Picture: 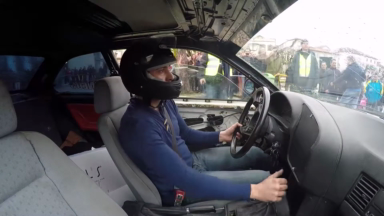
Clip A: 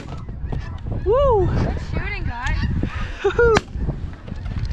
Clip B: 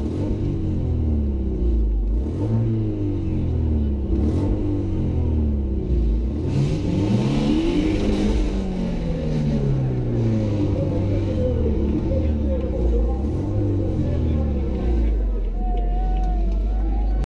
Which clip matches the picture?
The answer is B